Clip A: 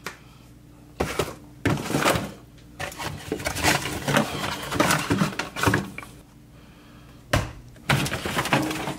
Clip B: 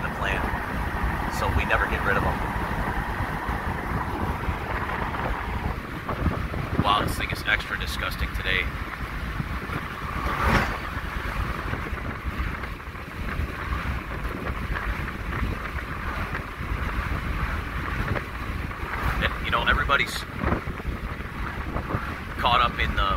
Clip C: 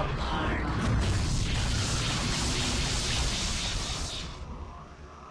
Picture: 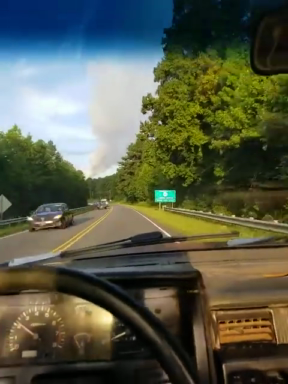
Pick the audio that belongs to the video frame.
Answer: B